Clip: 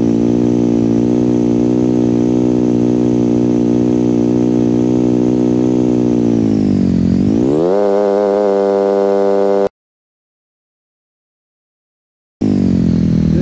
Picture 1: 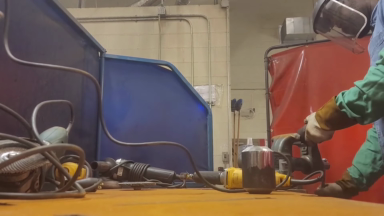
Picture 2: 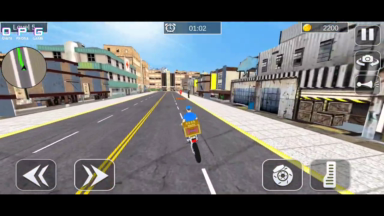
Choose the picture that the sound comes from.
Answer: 2